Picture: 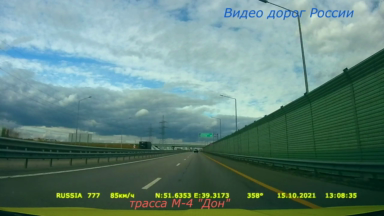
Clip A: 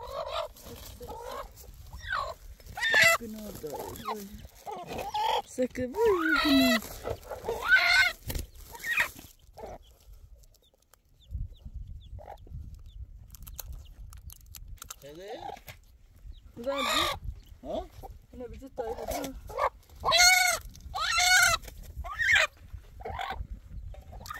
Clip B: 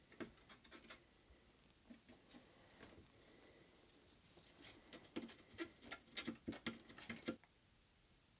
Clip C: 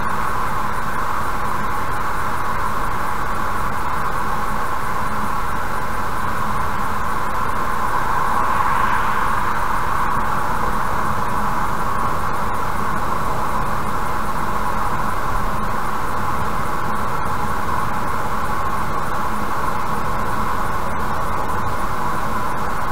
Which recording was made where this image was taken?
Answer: C